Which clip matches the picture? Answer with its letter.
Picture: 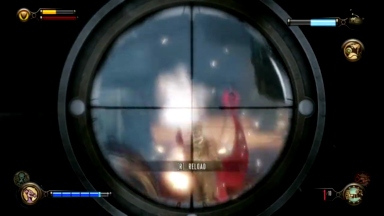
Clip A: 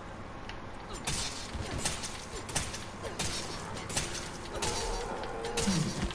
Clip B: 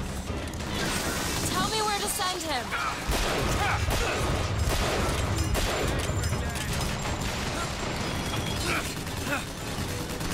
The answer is B